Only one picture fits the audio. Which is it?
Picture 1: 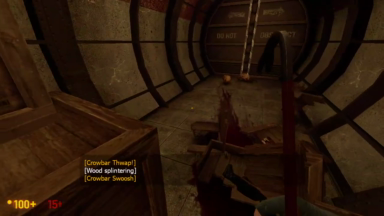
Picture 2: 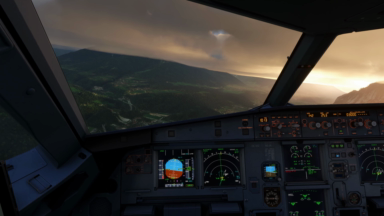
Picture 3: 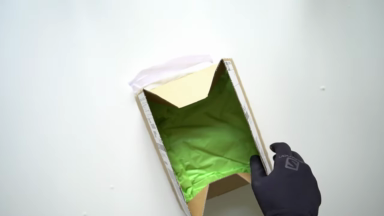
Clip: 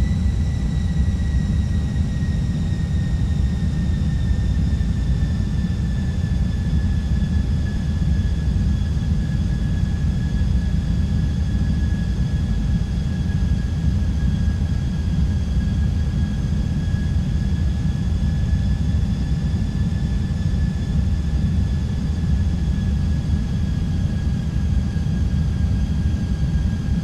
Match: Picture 2